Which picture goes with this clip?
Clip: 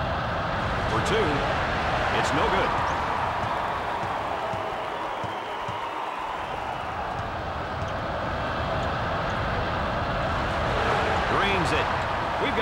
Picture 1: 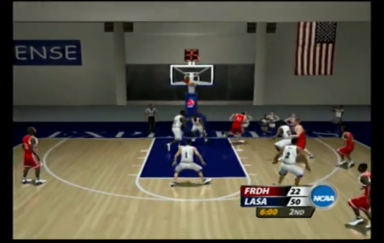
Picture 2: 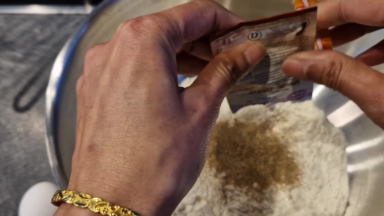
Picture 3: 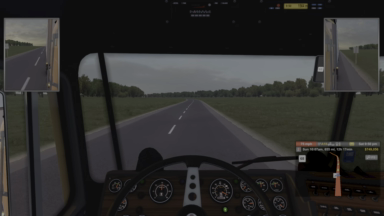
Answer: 1